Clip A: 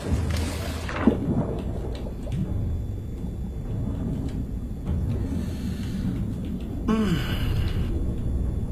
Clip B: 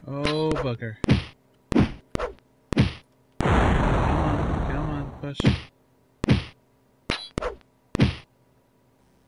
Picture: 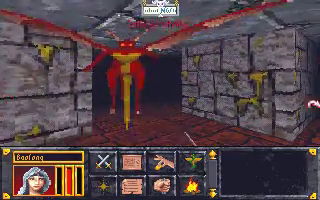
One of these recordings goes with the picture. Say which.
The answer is B